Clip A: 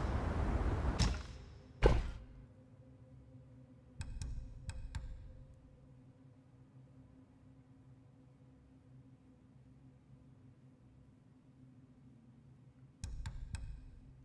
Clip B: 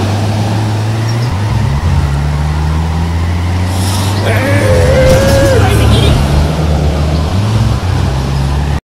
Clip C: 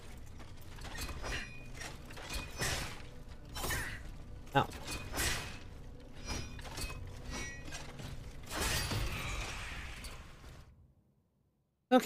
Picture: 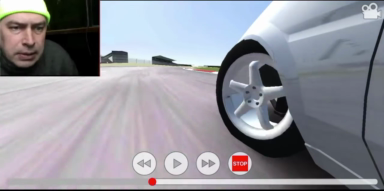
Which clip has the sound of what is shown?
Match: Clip B